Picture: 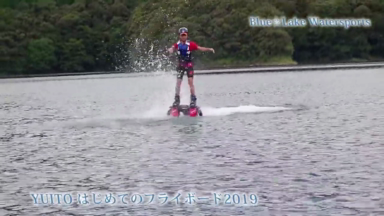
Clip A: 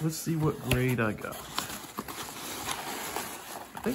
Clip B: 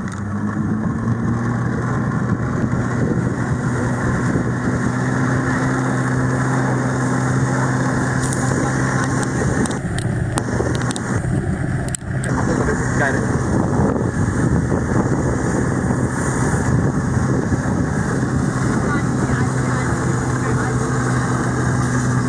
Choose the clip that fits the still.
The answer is B